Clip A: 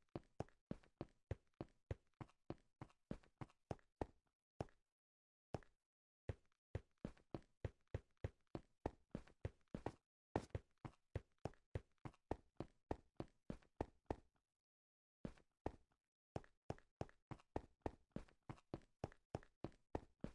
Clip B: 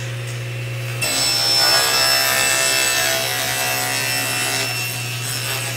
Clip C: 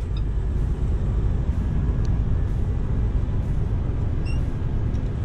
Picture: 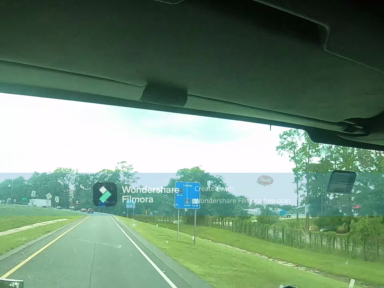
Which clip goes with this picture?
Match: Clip C